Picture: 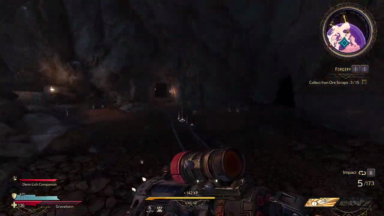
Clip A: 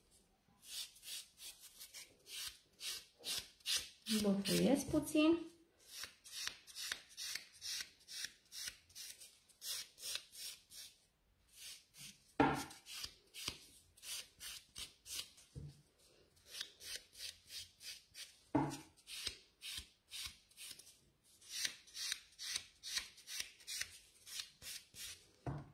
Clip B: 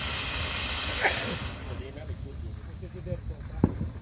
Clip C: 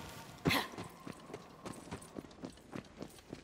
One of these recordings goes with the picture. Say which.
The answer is C